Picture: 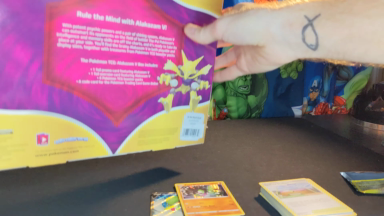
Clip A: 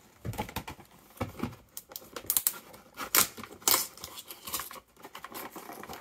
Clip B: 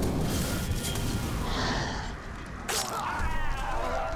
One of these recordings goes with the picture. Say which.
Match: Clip A